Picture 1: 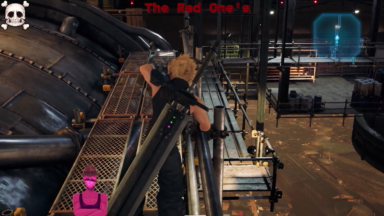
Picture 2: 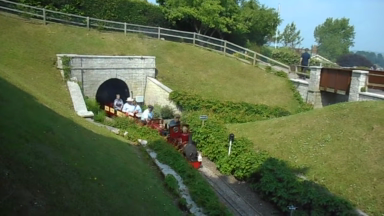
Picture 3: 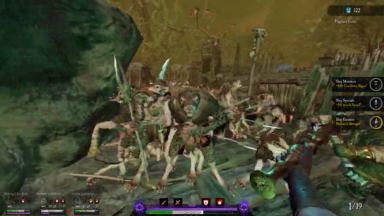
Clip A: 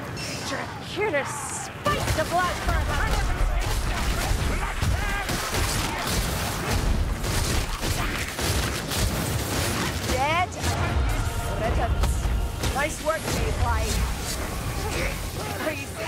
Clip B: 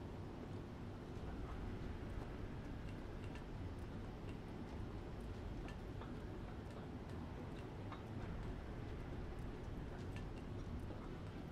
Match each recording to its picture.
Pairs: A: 3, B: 1